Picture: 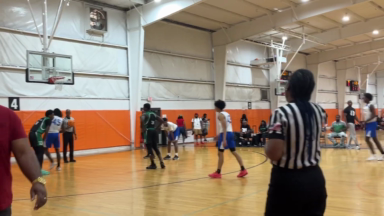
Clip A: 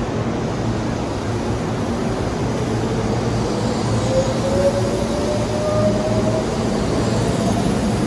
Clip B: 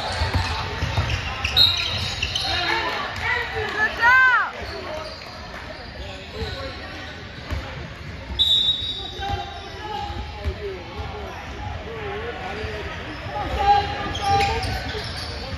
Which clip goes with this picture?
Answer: B